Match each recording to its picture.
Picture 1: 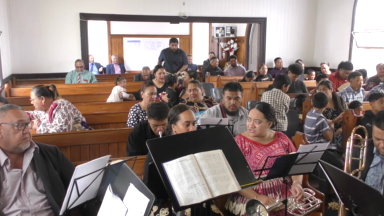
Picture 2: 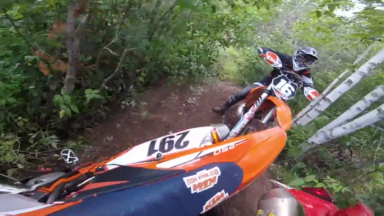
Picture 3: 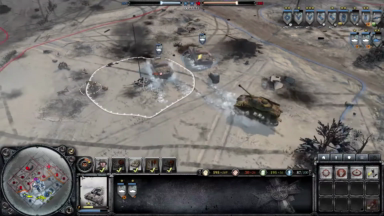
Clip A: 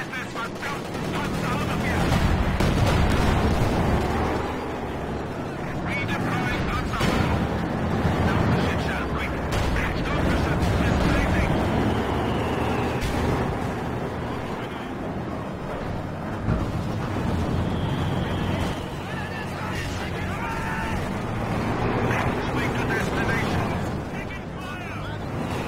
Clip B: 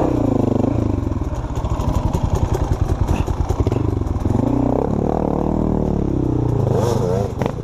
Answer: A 3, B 2